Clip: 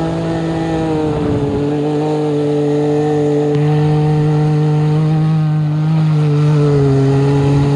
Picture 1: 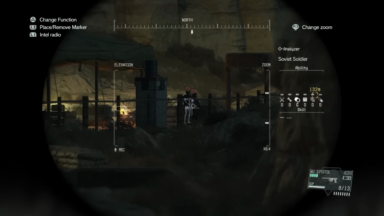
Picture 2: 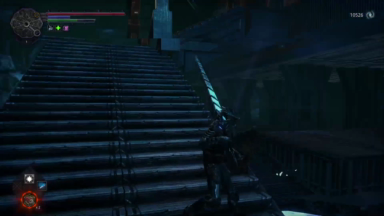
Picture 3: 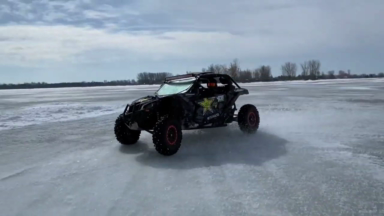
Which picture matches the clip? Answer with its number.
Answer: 3